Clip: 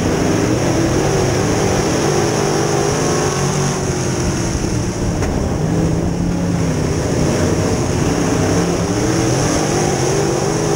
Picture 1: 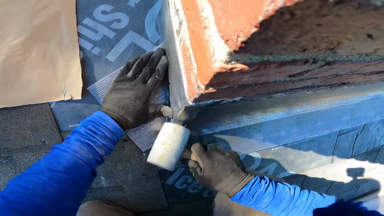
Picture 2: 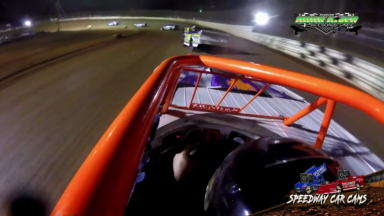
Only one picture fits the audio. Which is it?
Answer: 2